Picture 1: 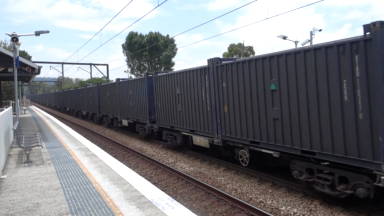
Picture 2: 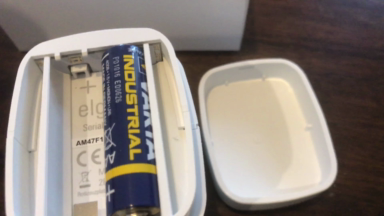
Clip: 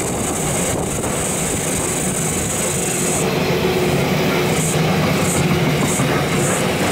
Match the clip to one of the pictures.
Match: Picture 1